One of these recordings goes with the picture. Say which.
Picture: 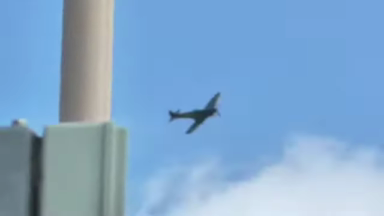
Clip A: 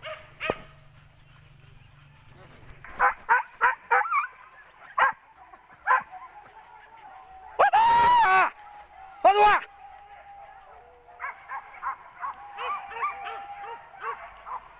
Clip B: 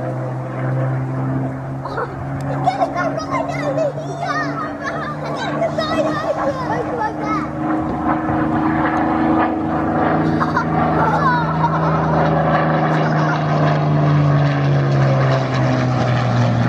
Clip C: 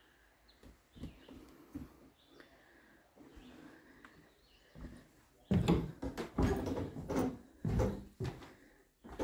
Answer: B